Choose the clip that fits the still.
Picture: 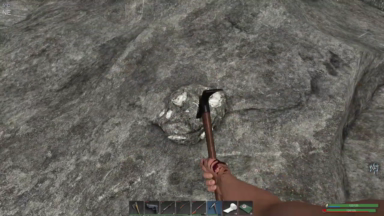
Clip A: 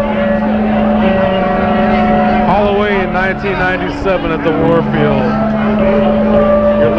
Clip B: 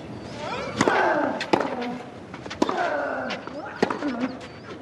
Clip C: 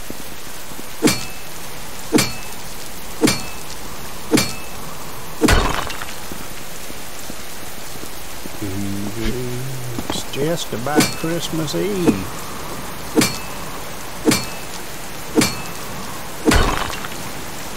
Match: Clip C